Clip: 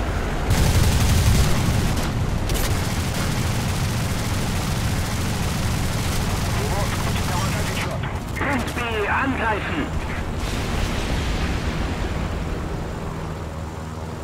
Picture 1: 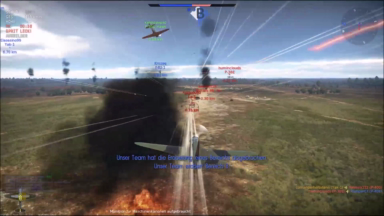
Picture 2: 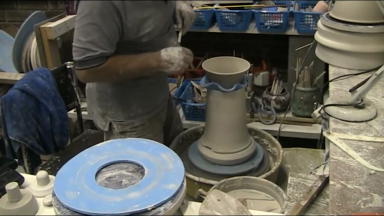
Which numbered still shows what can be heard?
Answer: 1